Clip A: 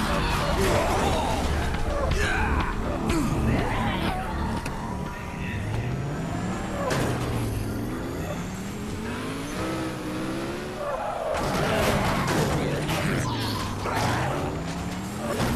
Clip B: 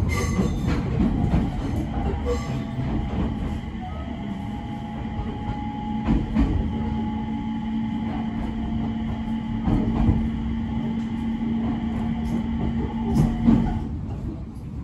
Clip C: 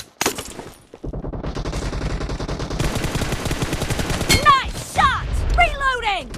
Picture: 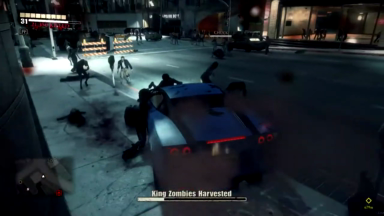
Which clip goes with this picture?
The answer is A